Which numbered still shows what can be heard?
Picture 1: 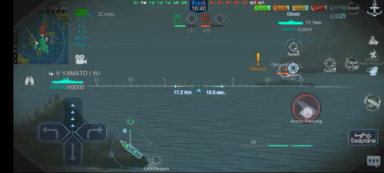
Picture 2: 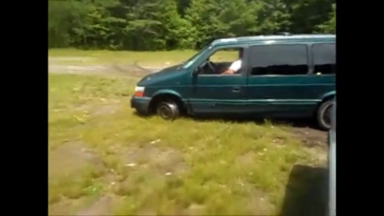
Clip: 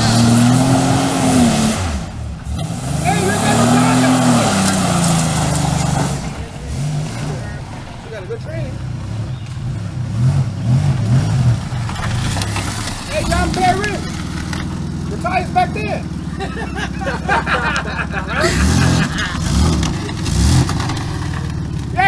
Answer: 2